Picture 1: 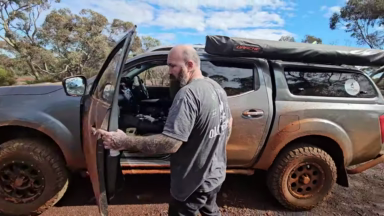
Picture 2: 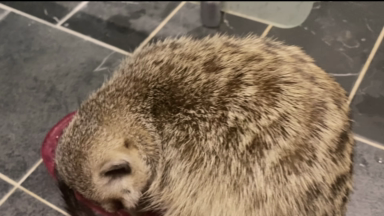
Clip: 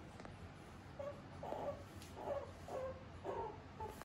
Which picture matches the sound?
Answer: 2